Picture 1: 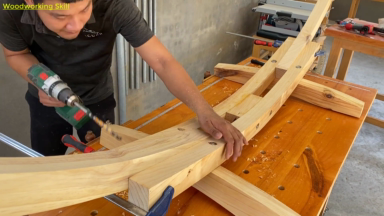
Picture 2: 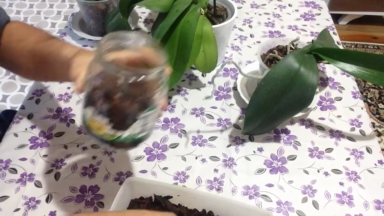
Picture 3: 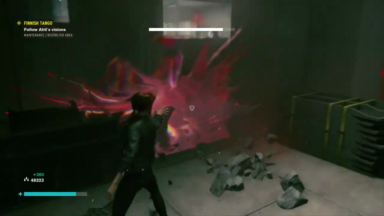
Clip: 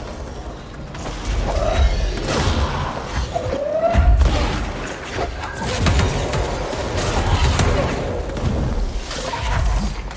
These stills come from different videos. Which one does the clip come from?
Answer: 3